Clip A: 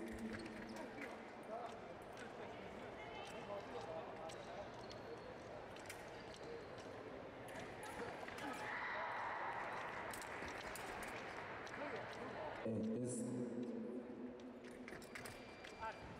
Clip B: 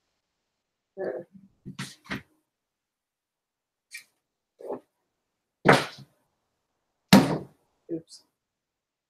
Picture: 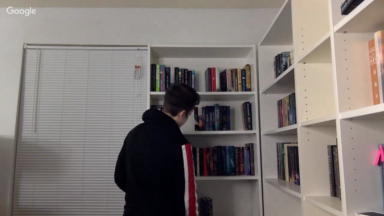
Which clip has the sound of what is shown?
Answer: B